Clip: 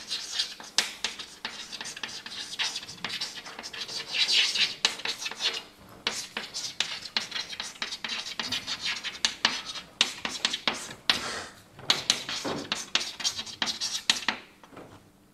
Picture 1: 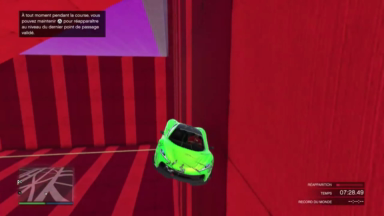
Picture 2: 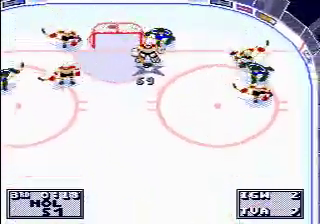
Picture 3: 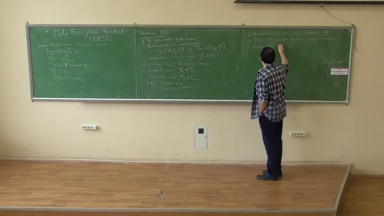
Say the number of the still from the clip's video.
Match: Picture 3